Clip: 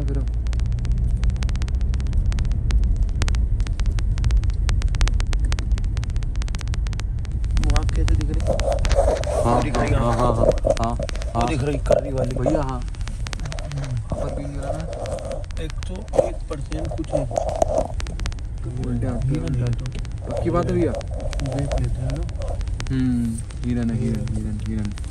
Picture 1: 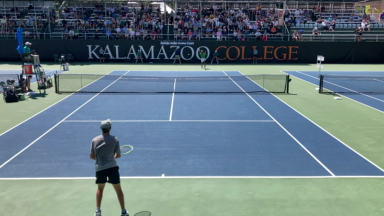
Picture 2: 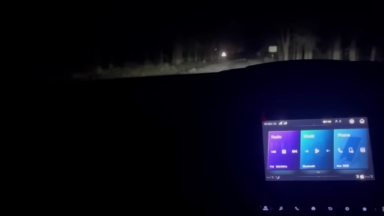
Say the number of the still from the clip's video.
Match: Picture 2